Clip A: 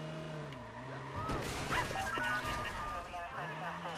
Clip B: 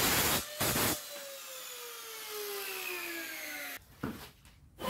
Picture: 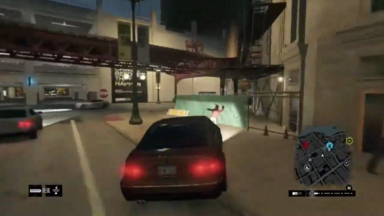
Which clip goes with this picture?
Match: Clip A